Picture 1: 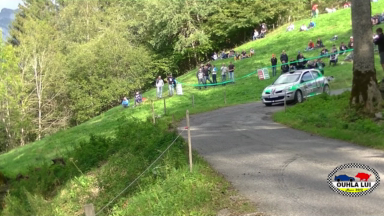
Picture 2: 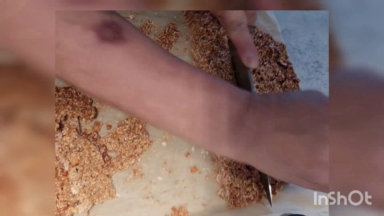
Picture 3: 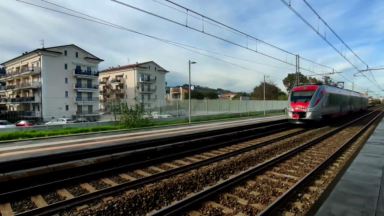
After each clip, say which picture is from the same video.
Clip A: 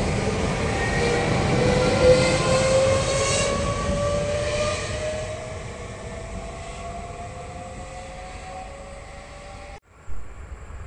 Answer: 3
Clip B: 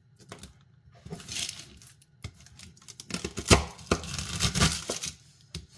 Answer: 2